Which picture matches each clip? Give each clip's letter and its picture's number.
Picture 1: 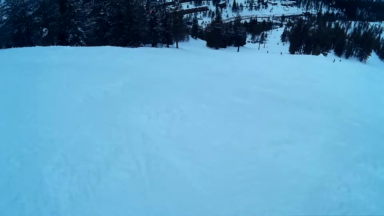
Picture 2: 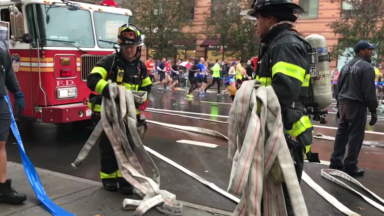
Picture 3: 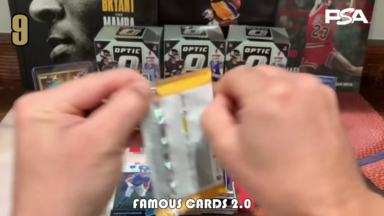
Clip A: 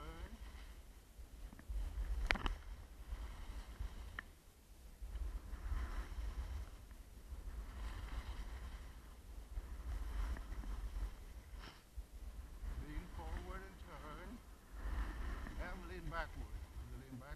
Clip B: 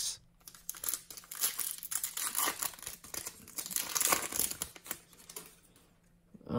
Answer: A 1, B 3